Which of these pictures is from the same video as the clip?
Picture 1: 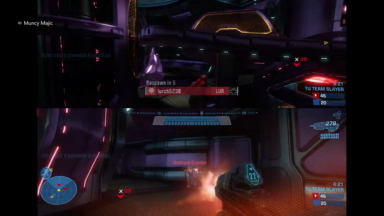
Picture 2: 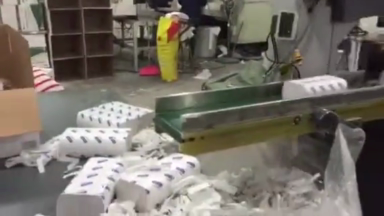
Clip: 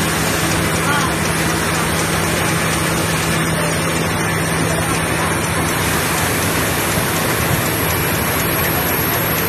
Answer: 2